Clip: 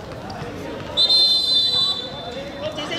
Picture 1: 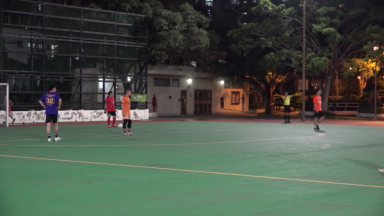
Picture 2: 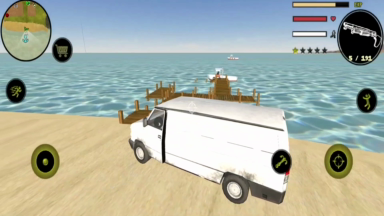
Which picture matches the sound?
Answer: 1